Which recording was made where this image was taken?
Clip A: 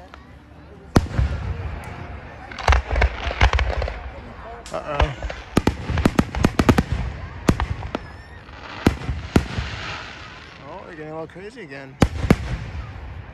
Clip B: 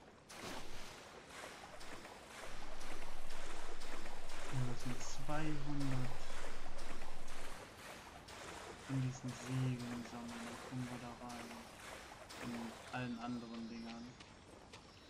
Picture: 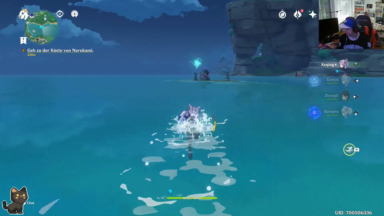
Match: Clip B